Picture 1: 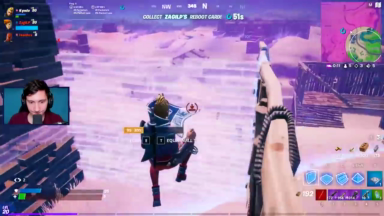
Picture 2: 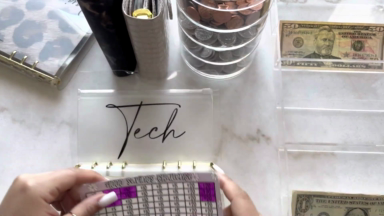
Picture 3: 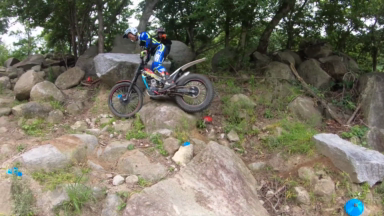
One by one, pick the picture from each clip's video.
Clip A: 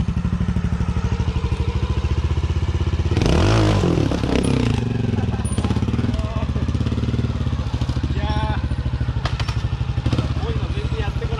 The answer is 3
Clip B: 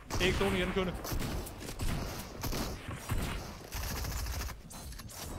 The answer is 1